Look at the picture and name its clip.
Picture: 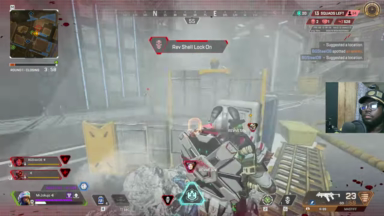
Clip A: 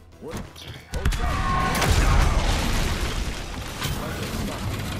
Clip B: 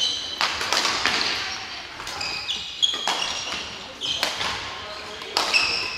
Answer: A